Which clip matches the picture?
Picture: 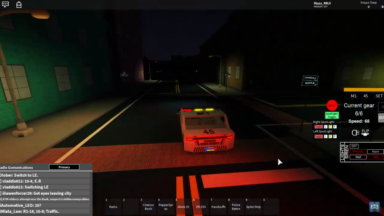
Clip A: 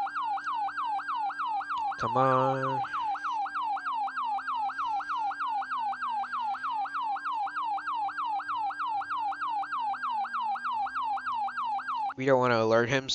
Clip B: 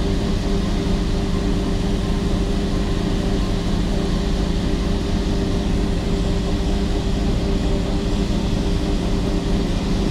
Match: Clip A